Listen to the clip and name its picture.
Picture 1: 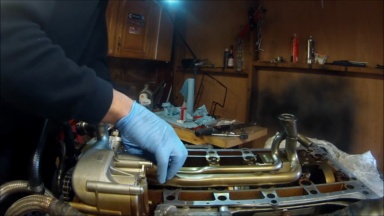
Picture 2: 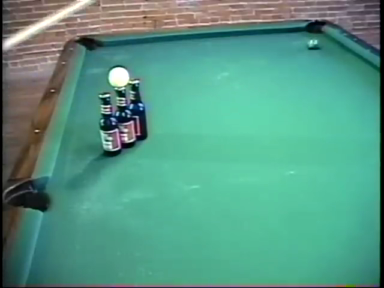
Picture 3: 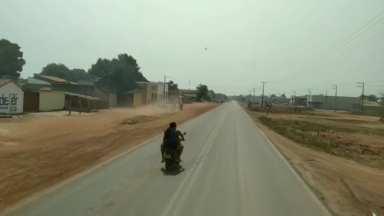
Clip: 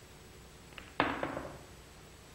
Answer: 2